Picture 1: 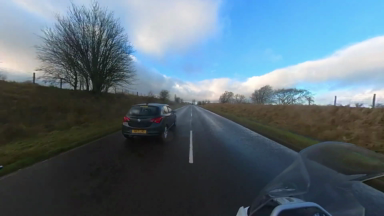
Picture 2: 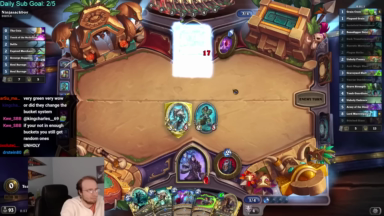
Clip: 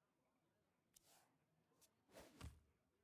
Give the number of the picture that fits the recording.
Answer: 2